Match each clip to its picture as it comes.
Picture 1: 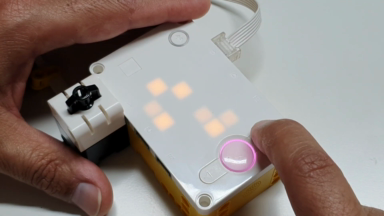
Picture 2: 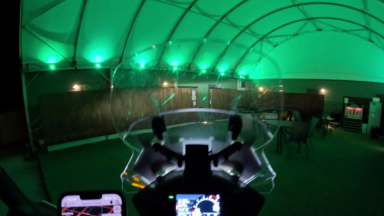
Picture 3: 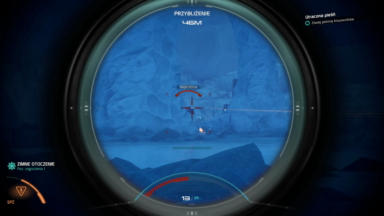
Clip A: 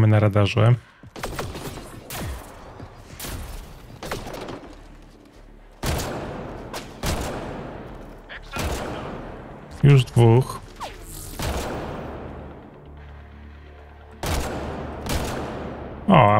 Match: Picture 3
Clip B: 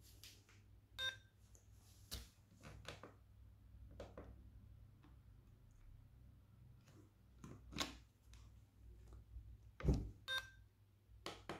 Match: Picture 1